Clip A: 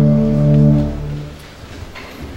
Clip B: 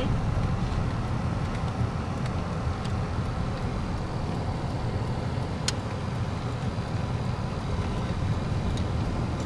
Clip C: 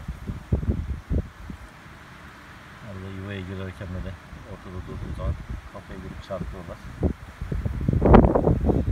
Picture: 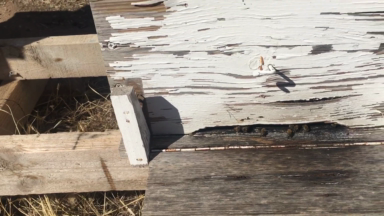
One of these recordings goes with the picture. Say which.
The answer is C